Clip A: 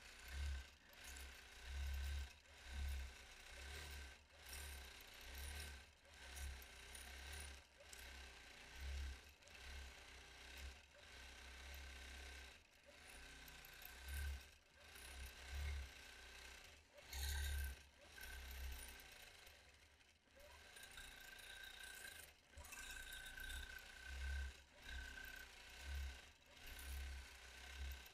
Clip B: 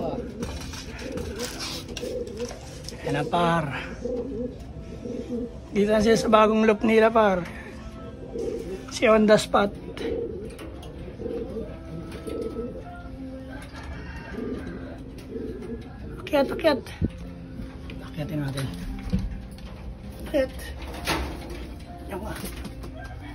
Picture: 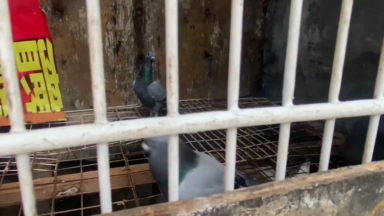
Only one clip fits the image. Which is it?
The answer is B